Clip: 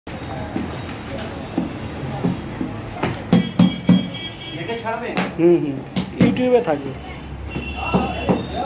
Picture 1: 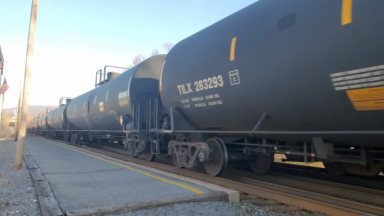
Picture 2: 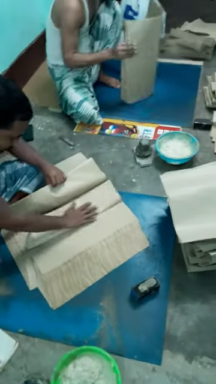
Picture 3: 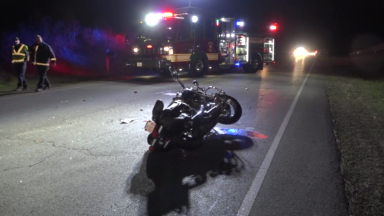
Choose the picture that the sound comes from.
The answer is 2